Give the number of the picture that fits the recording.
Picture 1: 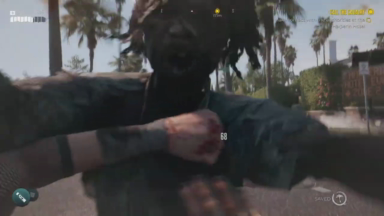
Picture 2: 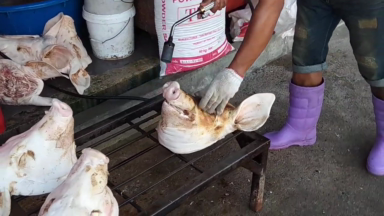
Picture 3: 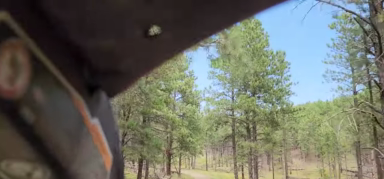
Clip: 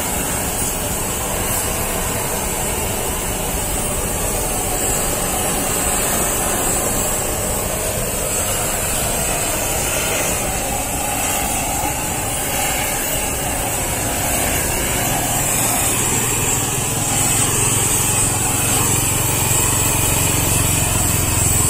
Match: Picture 2